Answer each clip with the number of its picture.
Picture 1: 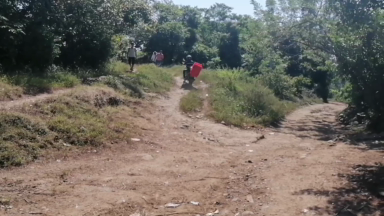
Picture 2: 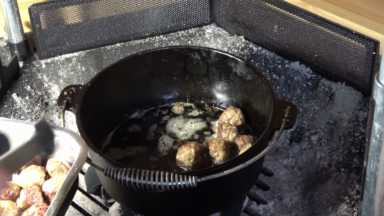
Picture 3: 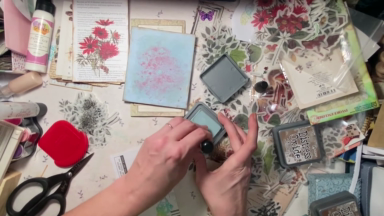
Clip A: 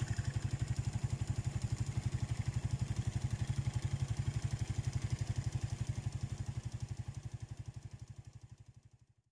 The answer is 1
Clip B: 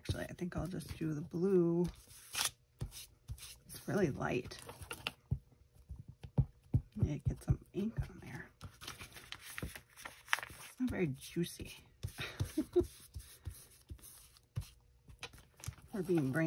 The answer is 3